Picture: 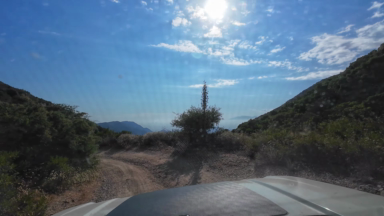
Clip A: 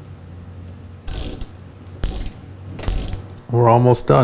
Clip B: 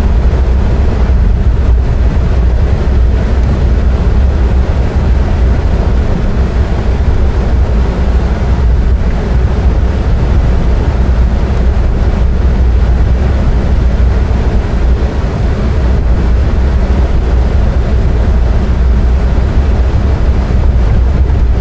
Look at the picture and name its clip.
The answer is B